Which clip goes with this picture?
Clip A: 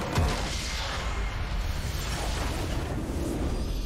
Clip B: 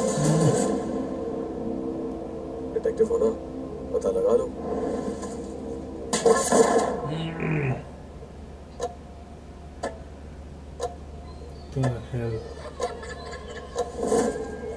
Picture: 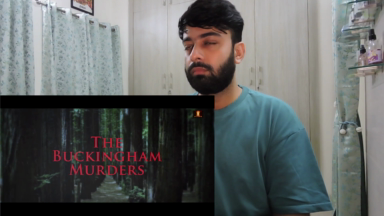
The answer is B